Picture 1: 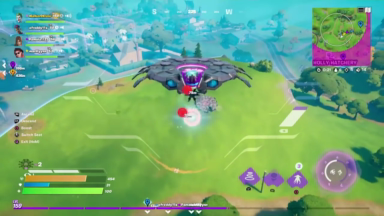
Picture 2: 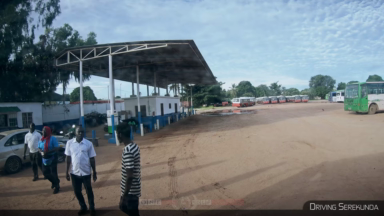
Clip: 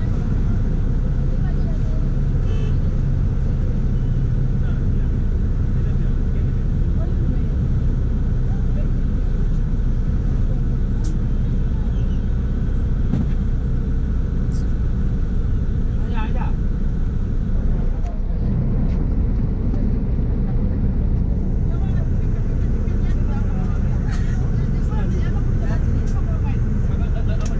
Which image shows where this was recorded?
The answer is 2